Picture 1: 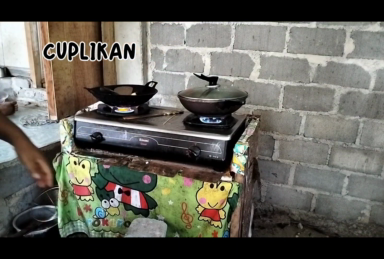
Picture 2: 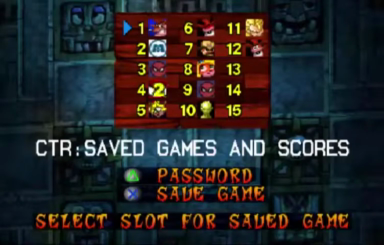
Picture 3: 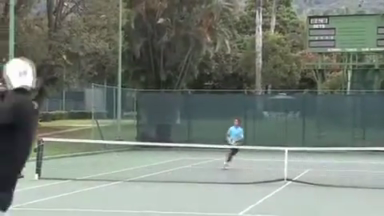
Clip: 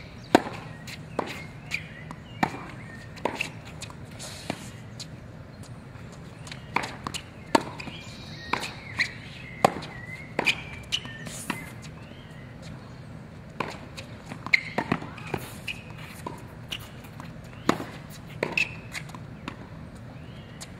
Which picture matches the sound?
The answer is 3